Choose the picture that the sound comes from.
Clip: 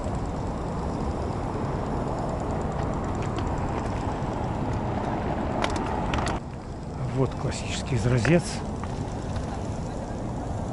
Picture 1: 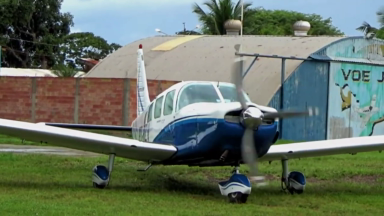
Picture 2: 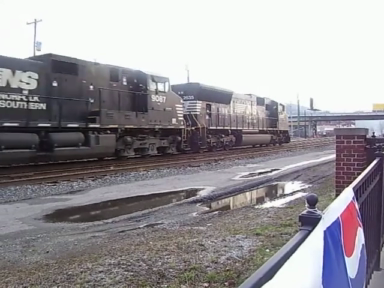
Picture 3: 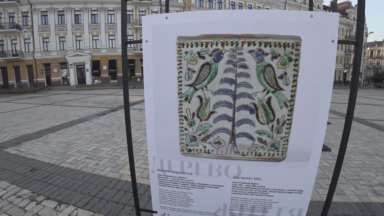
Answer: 3